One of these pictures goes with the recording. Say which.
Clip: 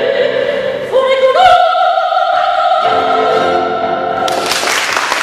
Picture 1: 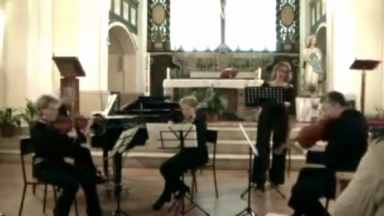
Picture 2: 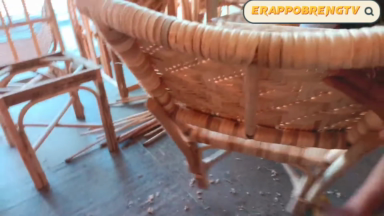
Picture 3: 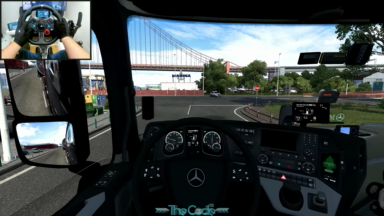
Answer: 1